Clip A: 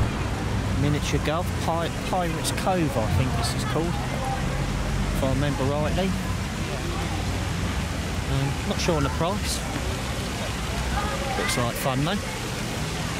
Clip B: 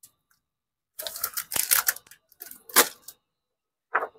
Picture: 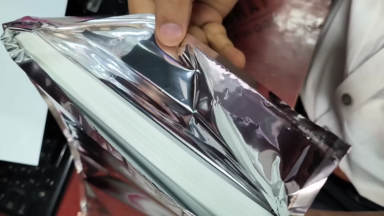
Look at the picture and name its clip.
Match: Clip B